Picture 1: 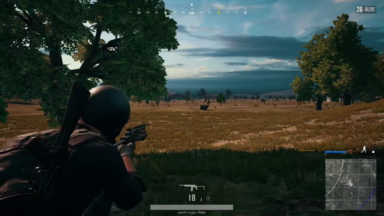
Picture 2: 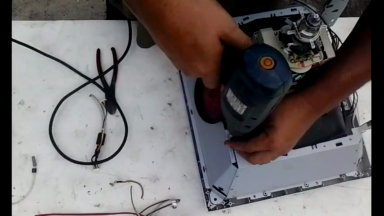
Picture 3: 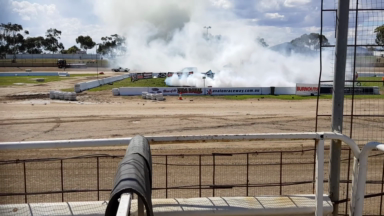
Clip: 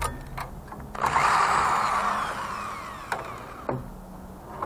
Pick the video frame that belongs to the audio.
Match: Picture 2